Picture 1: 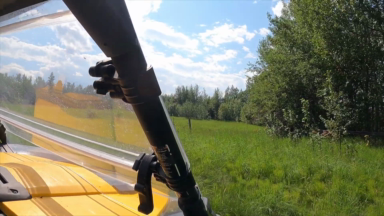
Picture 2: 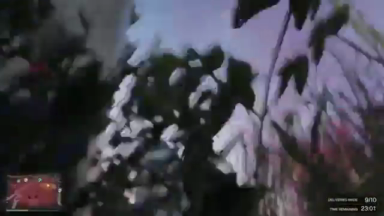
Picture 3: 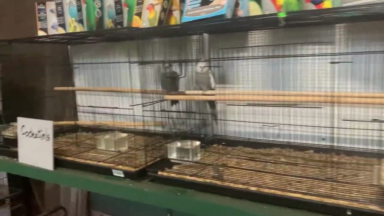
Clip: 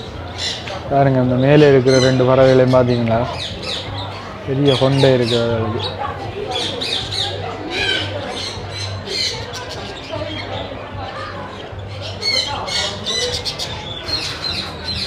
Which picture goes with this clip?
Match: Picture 3